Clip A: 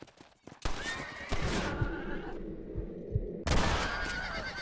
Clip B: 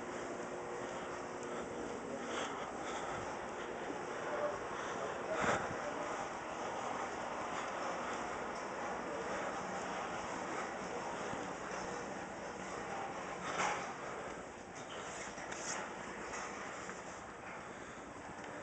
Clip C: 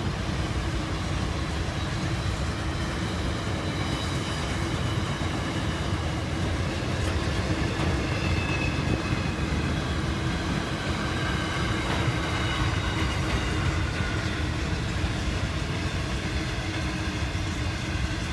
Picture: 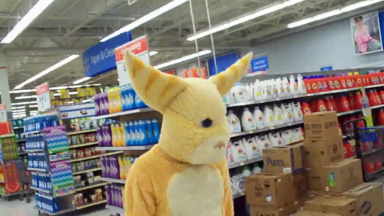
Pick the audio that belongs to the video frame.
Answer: B